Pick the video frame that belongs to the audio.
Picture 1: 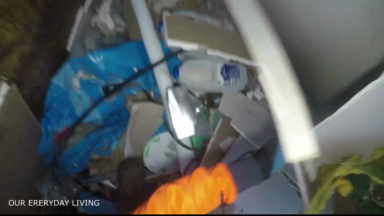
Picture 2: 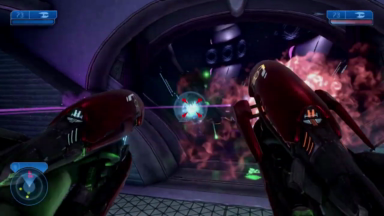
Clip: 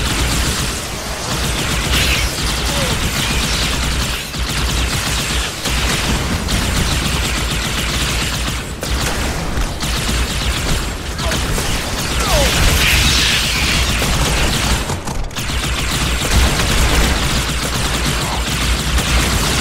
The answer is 2